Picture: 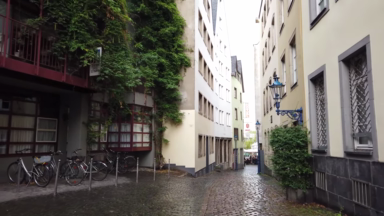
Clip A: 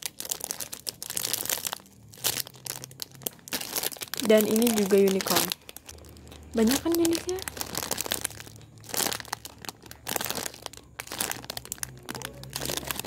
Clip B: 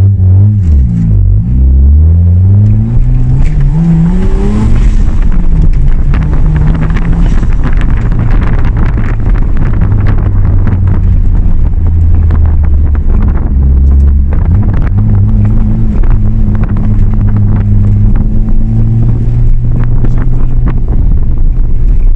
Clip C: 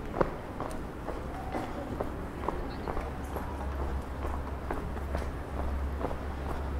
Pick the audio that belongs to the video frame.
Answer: C